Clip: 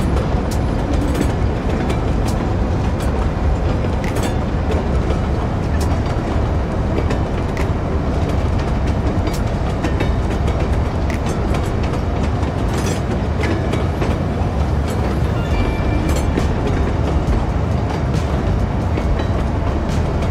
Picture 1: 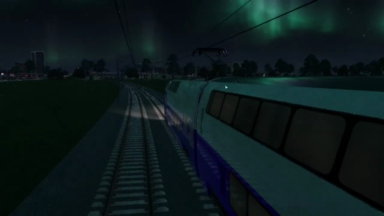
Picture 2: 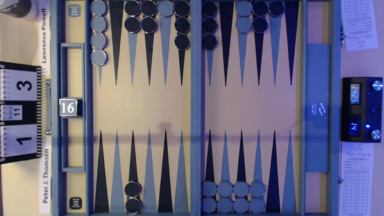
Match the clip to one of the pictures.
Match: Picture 1